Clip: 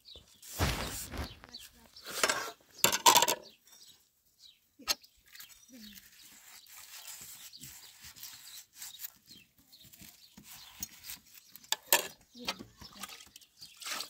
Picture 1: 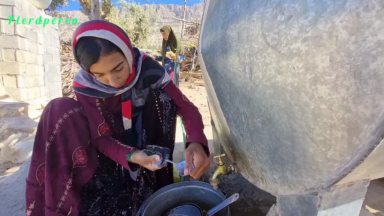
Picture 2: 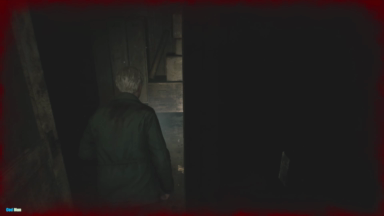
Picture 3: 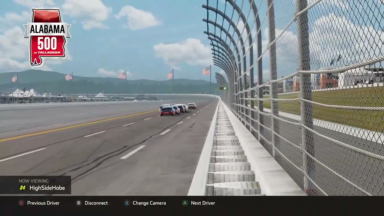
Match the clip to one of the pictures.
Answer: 1